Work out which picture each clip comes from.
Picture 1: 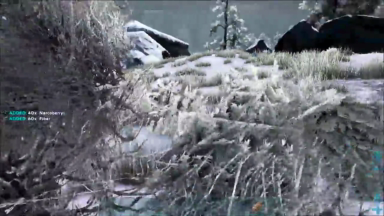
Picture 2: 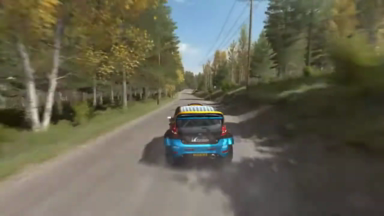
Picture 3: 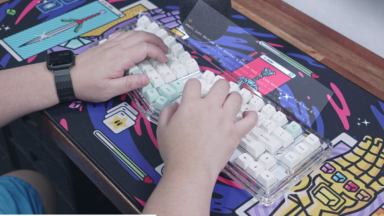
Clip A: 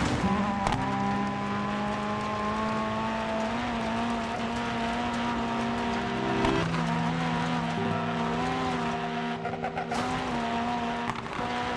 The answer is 2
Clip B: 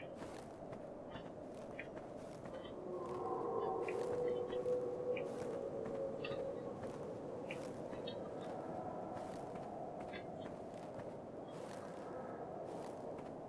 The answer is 1